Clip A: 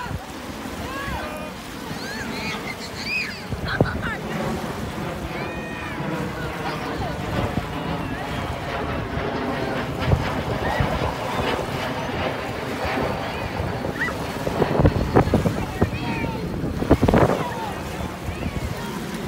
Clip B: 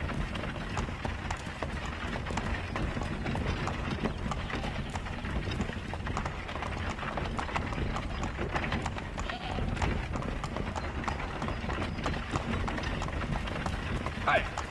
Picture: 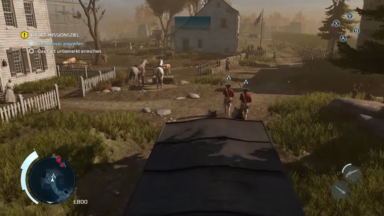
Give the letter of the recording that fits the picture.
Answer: B